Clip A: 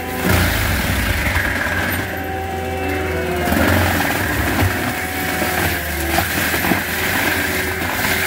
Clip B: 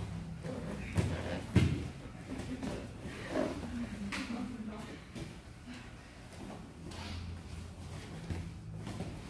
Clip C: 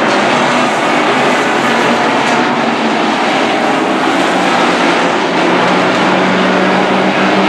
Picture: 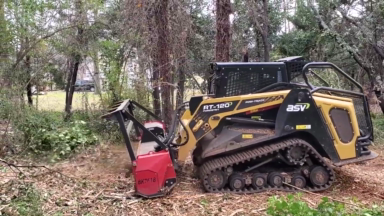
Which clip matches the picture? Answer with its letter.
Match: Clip A